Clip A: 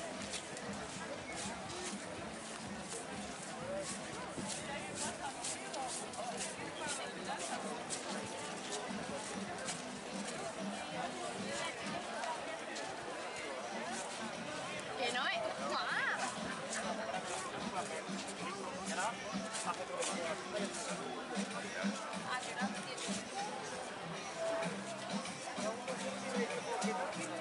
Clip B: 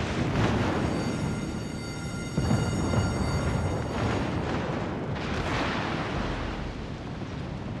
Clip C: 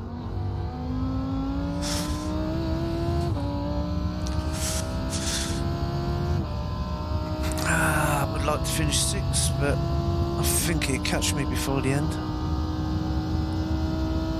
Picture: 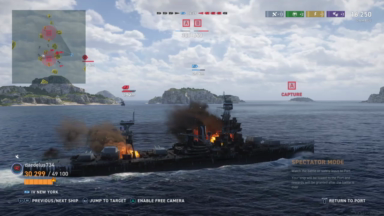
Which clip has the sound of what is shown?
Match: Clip B